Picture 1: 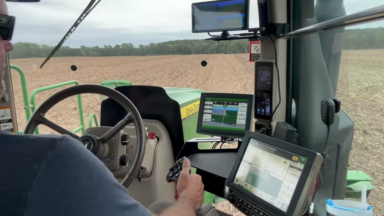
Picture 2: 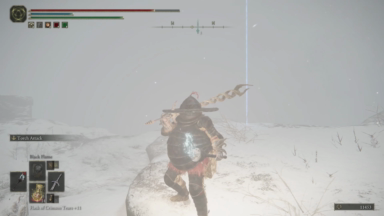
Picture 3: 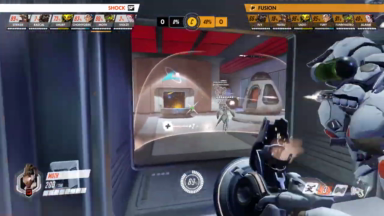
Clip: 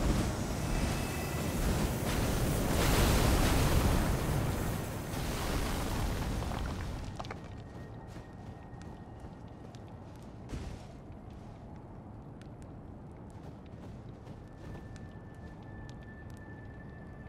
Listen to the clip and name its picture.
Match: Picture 2